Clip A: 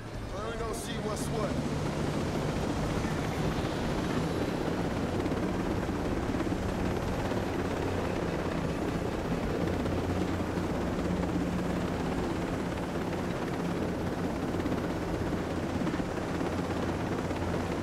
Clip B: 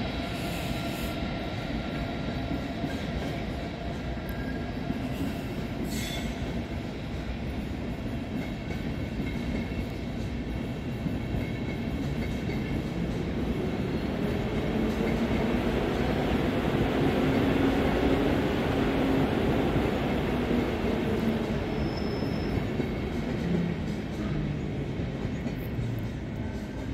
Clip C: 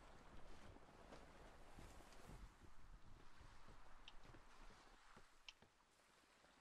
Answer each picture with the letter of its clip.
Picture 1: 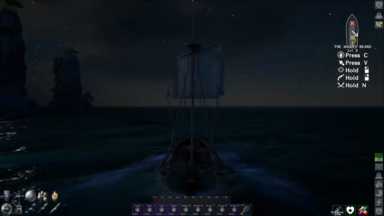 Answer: C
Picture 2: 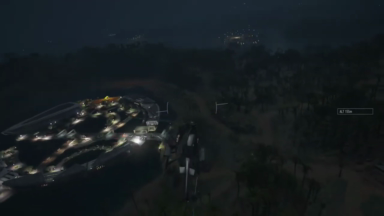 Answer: A